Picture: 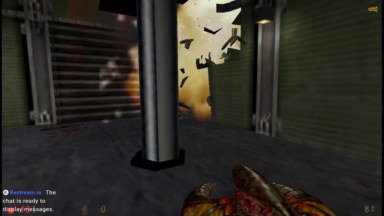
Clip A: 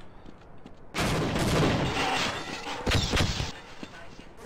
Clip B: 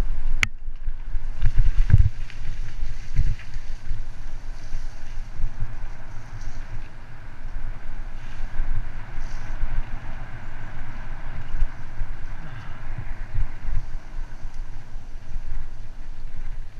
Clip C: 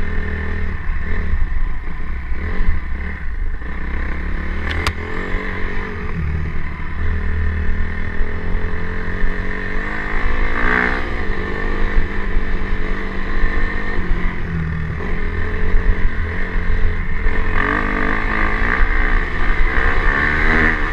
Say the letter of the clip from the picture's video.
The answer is A